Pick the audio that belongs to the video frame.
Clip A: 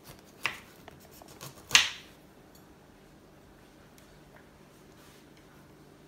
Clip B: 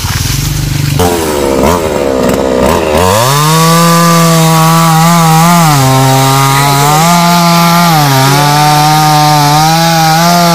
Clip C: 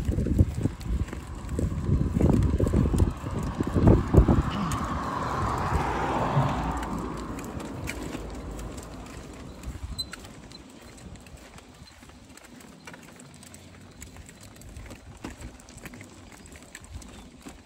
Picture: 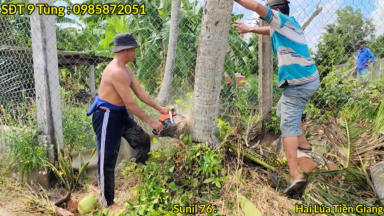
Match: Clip B